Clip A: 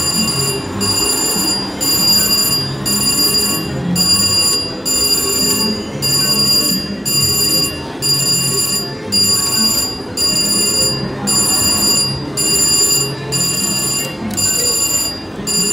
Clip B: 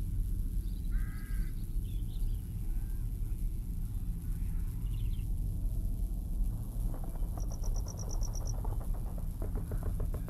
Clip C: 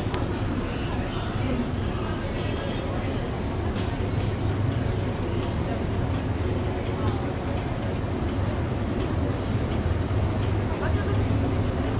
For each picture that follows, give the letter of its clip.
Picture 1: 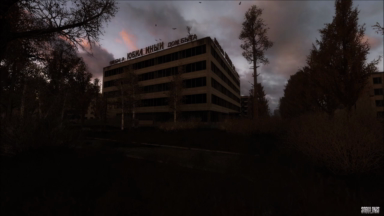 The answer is B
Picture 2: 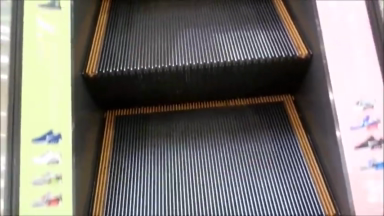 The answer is C